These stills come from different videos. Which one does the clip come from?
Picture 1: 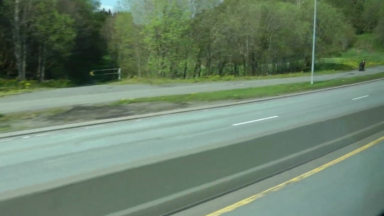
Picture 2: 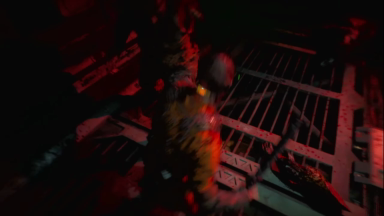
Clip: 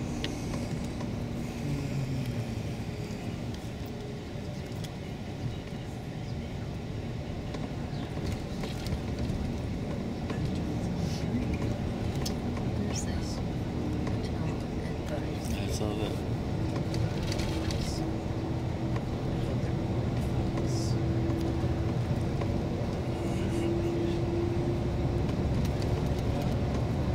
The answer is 1